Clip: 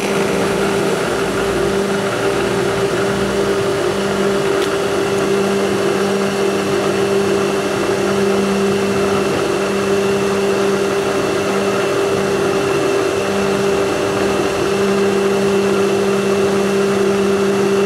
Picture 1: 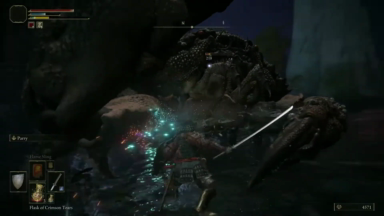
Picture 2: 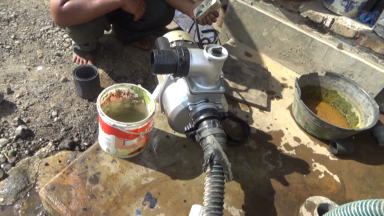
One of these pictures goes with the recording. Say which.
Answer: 2